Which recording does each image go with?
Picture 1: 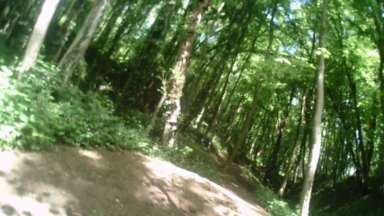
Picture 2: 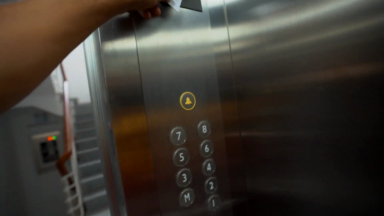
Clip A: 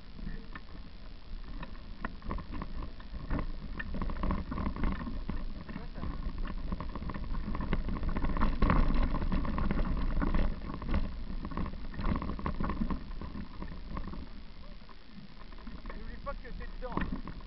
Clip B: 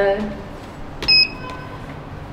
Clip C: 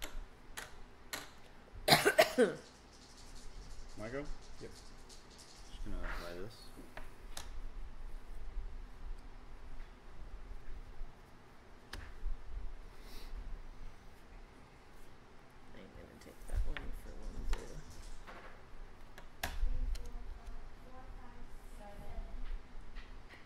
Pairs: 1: A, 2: B